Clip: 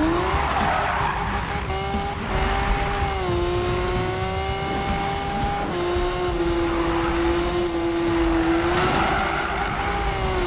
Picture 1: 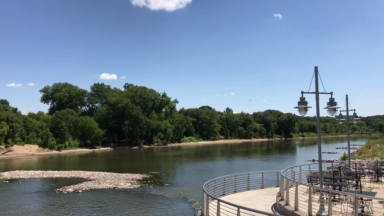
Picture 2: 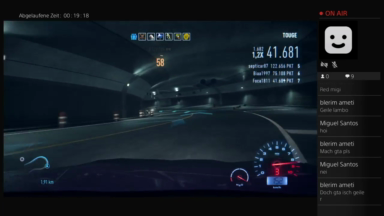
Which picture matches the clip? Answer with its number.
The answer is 2